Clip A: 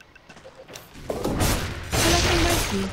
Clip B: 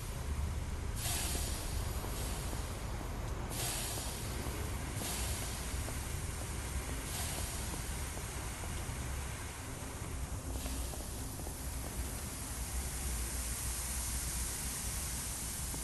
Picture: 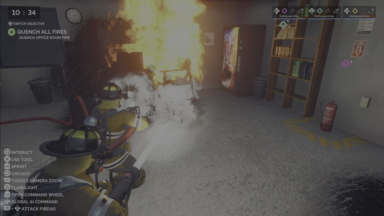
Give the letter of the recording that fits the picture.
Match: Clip B